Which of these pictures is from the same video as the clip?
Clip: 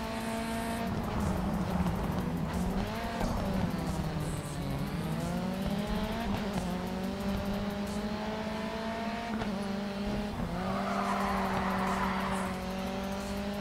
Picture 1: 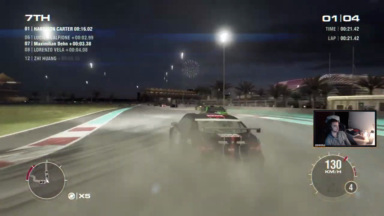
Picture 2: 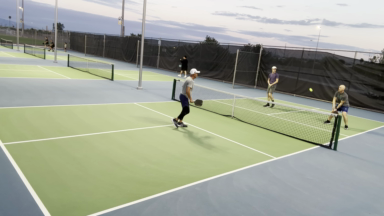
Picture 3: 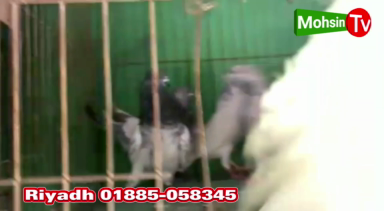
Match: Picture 1